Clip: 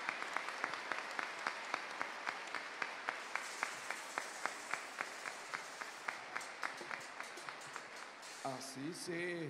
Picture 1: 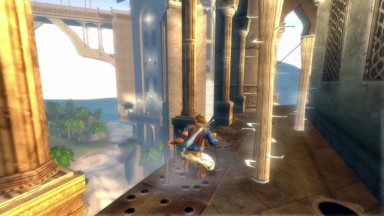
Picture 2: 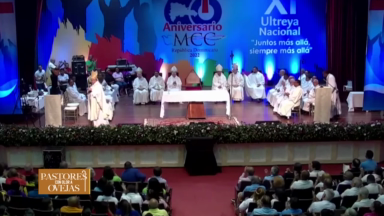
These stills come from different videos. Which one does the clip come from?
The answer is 2